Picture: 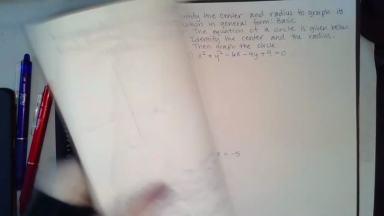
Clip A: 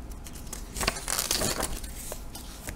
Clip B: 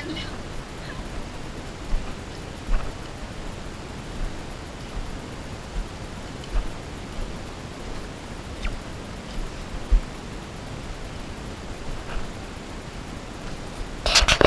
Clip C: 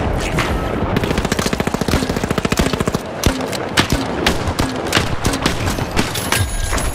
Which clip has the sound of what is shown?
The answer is A